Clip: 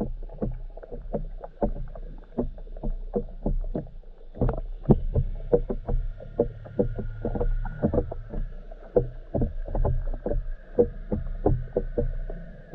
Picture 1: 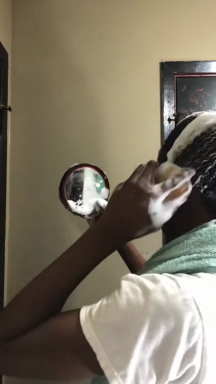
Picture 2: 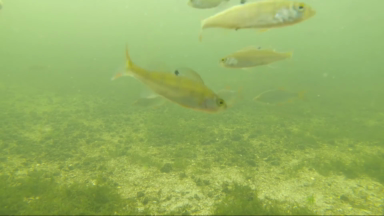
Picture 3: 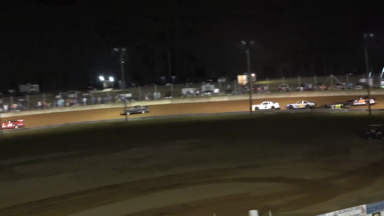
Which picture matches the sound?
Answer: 2